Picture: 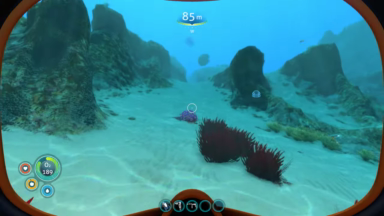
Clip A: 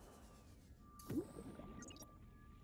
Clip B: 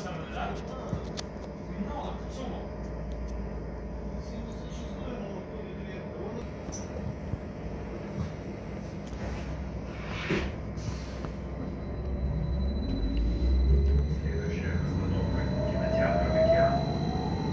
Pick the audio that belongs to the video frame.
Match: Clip A